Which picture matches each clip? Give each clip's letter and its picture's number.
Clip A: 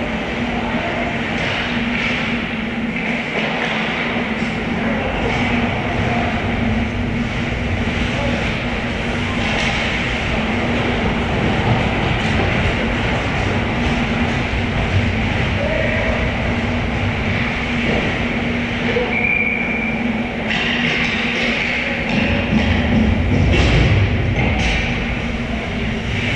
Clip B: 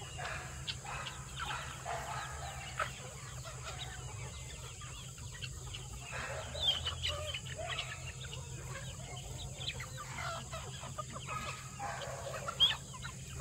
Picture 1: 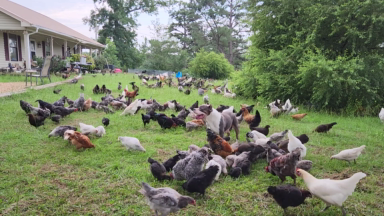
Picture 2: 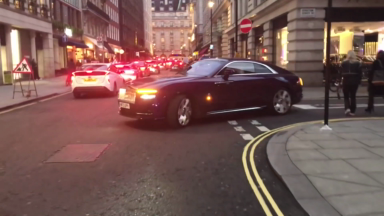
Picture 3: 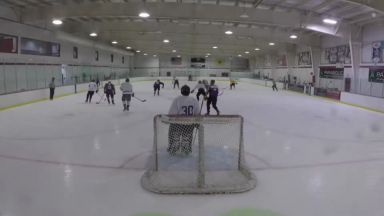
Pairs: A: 3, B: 1